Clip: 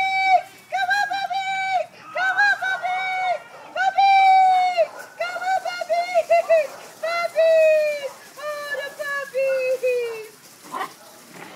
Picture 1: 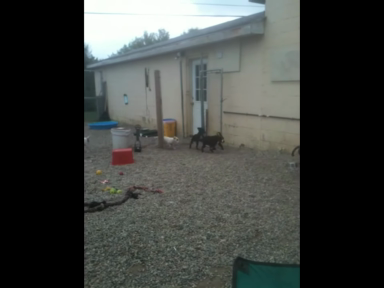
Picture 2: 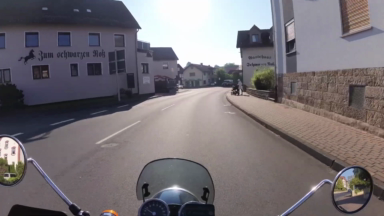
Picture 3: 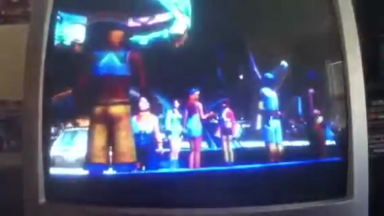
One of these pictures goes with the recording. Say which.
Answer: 1